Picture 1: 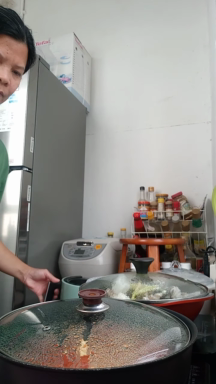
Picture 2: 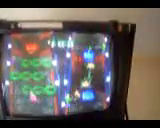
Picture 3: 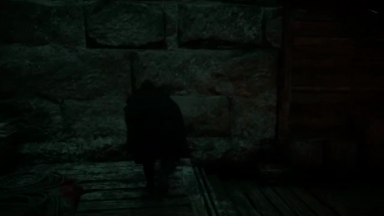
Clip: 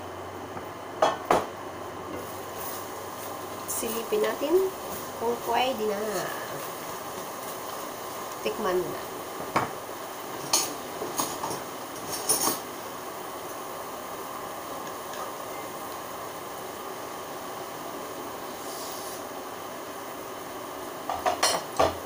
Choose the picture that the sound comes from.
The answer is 1